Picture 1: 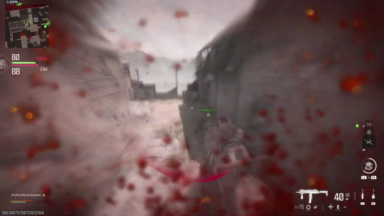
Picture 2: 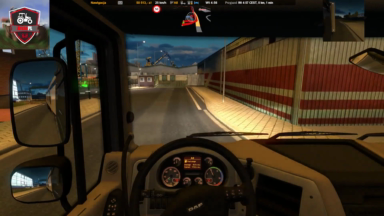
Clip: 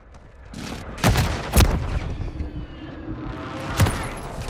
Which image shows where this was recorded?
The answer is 1